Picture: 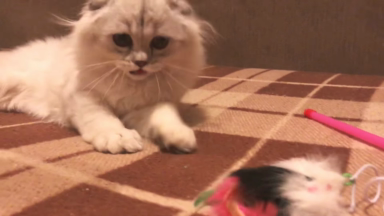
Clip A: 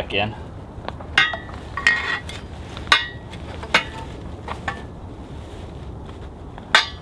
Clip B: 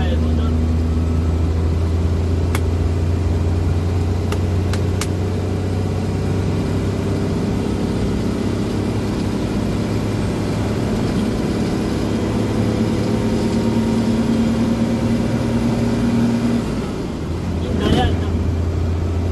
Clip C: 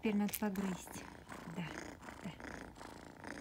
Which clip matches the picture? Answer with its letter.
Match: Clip C